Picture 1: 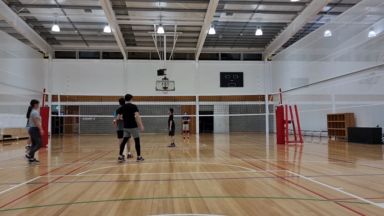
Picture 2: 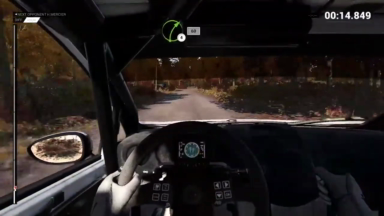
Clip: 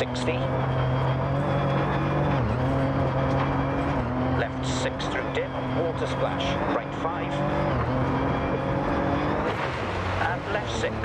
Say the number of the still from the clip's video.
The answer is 2